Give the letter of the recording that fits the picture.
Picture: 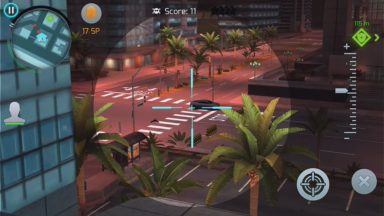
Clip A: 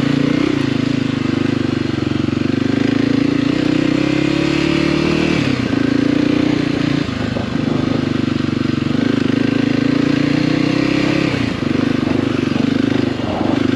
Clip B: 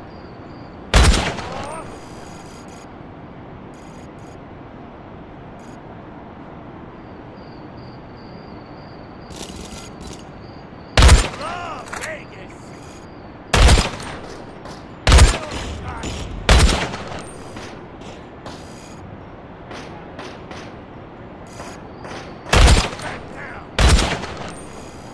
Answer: B